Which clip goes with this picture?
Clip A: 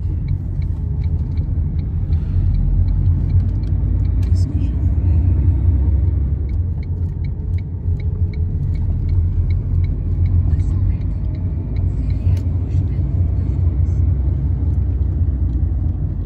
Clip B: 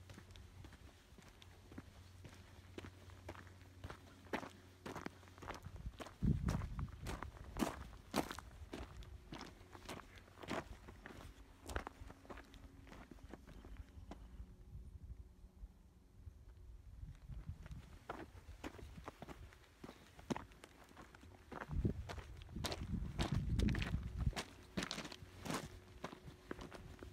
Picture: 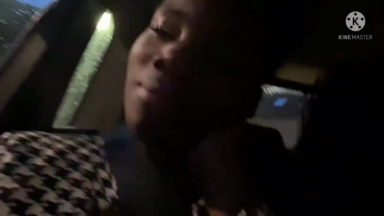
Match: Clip A